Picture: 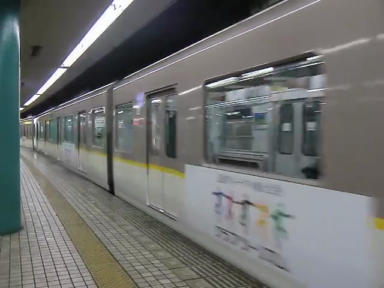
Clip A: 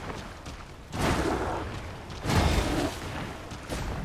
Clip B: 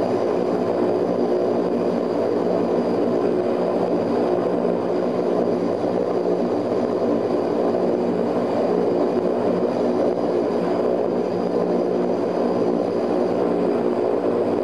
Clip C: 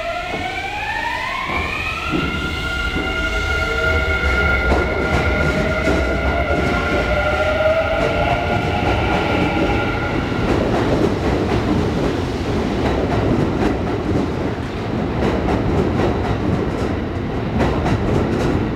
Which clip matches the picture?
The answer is C